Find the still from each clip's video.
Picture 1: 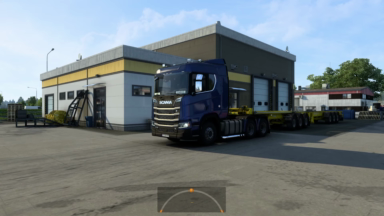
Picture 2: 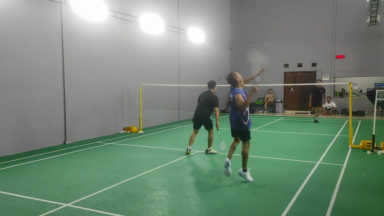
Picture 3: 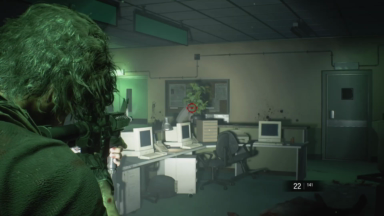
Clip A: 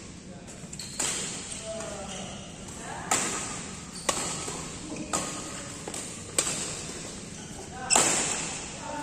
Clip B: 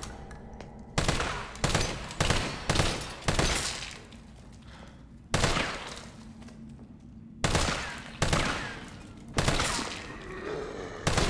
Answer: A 2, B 3